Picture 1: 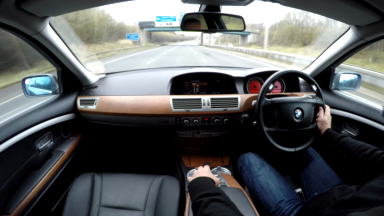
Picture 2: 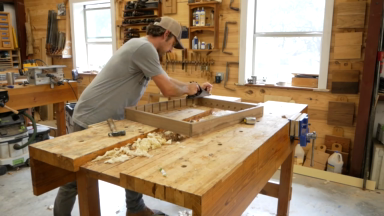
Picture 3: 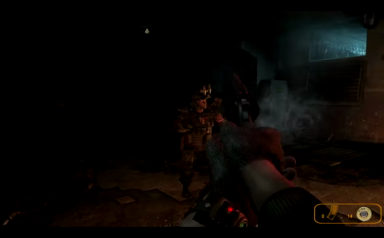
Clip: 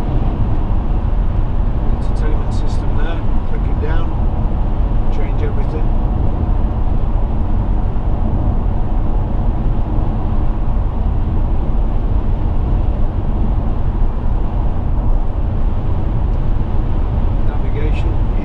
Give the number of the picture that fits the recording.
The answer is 1